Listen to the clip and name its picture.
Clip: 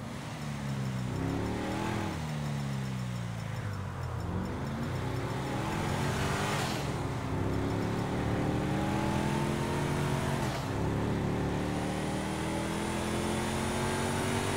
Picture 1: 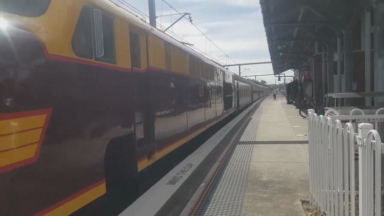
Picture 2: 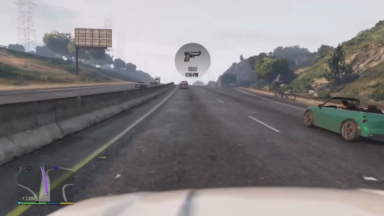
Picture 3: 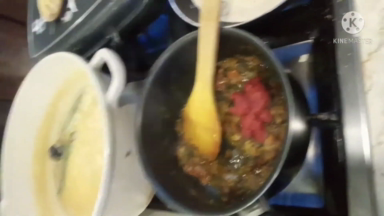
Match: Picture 2